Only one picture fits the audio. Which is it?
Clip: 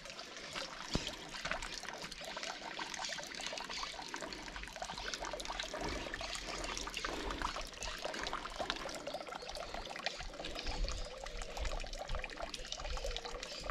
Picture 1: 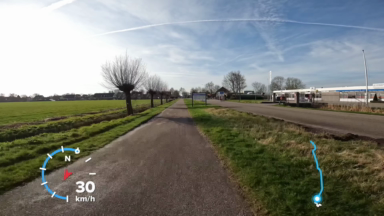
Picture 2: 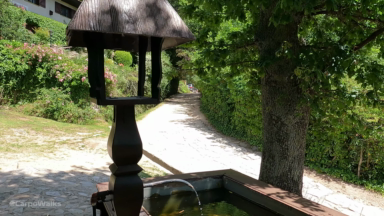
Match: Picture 2